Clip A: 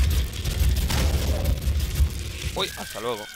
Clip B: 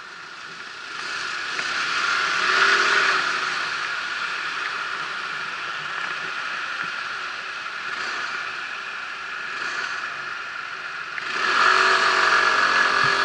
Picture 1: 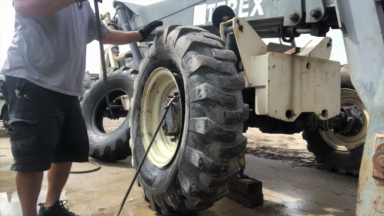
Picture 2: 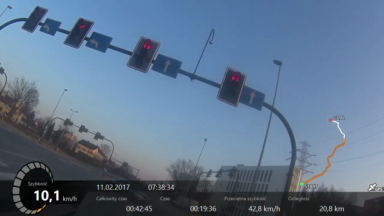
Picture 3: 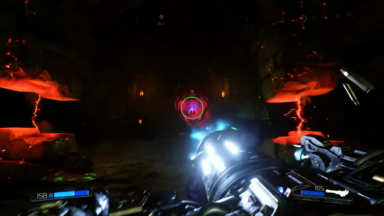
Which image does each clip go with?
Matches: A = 3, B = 2